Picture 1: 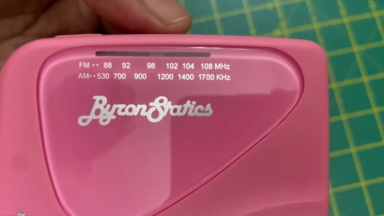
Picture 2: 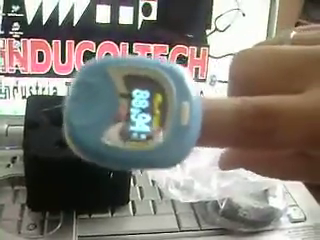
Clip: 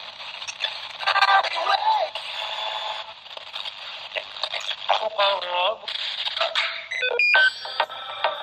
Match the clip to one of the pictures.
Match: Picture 1